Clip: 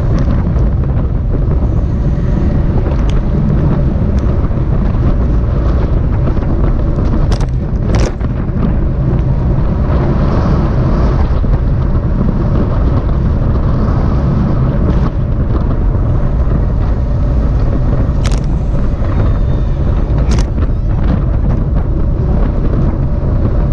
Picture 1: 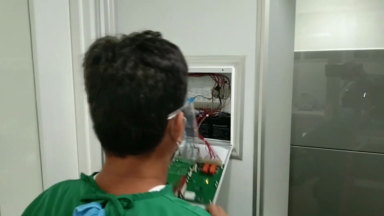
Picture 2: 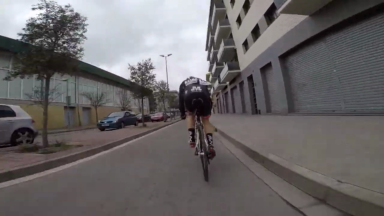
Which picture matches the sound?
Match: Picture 2